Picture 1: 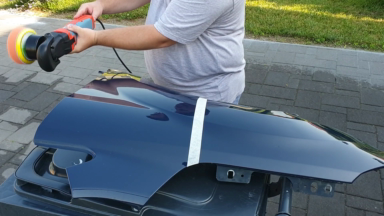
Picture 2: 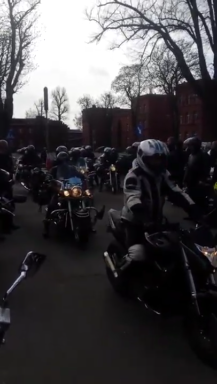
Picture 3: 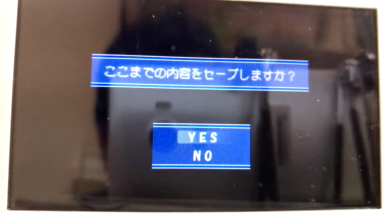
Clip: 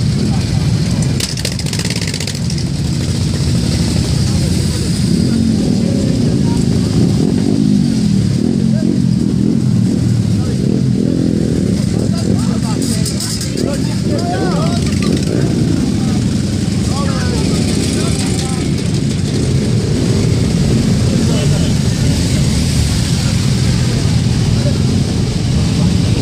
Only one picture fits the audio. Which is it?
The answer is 2